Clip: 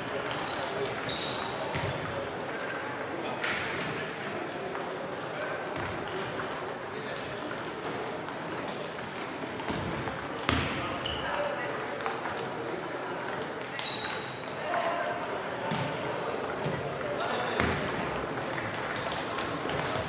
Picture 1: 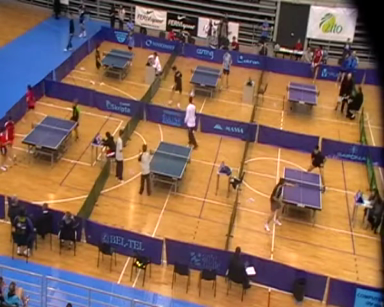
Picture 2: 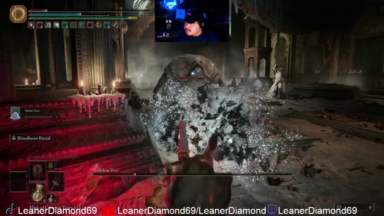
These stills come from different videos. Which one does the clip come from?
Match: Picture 1